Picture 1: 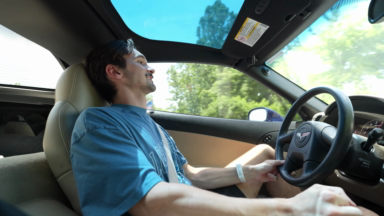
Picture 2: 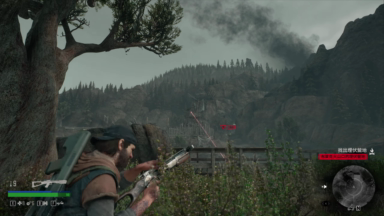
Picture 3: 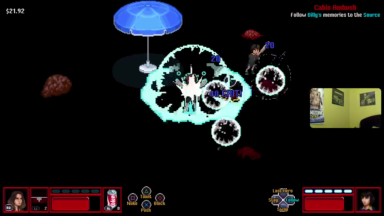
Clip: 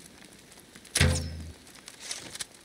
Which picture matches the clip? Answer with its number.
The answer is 2